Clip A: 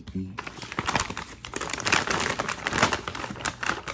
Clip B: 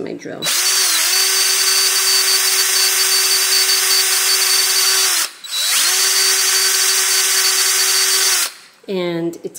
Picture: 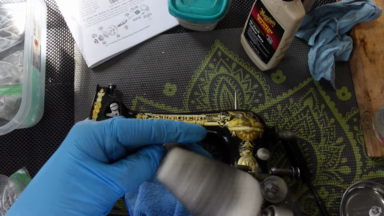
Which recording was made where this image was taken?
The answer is B